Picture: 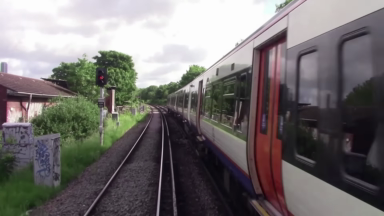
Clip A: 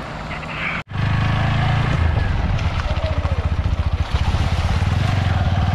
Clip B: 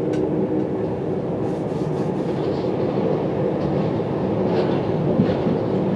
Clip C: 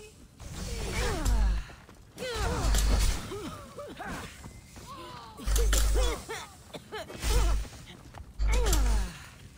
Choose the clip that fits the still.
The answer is B